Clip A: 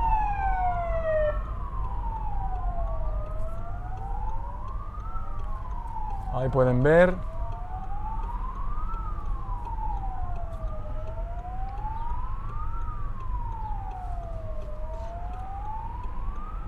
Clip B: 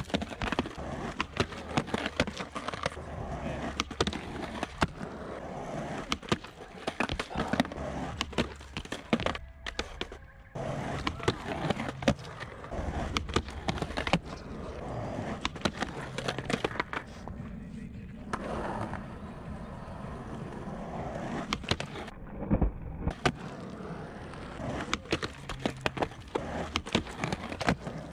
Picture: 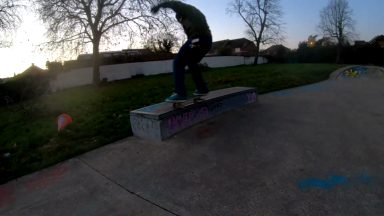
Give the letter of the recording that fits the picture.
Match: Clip B